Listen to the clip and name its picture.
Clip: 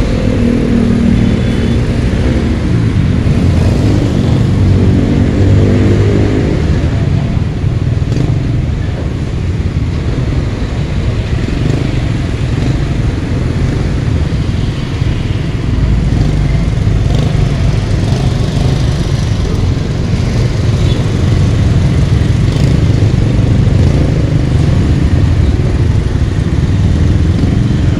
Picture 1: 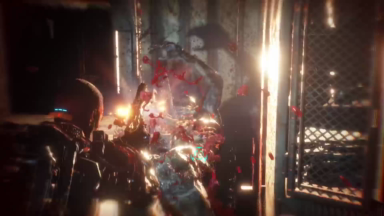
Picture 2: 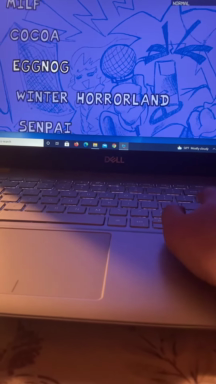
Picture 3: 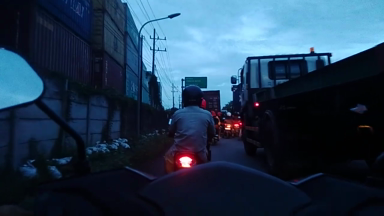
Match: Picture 3